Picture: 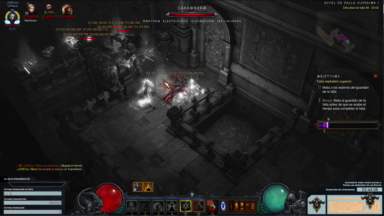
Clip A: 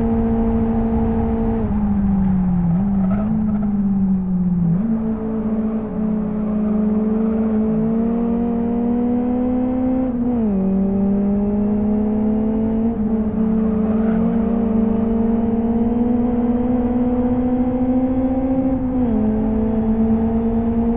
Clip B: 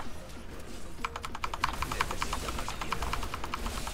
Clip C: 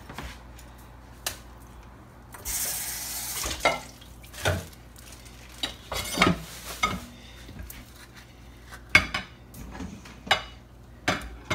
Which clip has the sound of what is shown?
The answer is B